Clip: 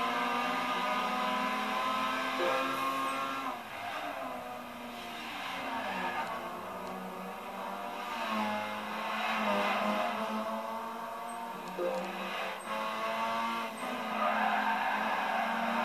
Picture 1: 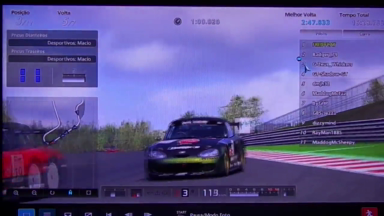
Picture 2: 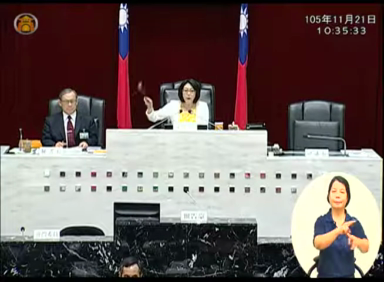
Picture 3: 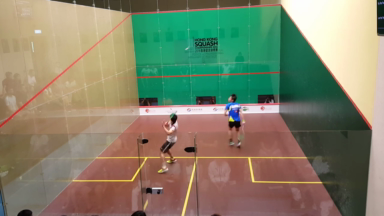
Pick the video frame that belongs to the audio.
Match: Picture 1